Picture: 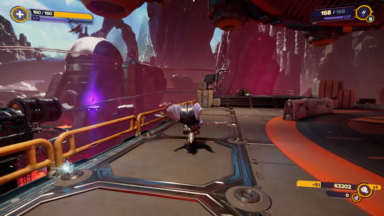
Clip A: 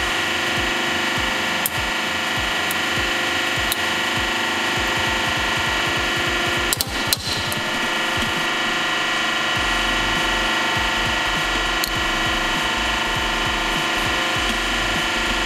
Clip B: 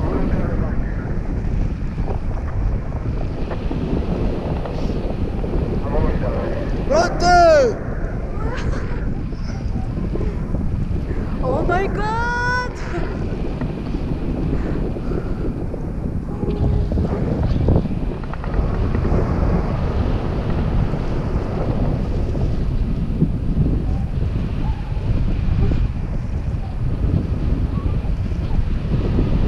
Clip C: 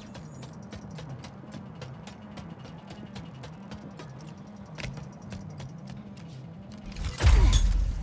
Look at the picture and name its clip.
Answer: C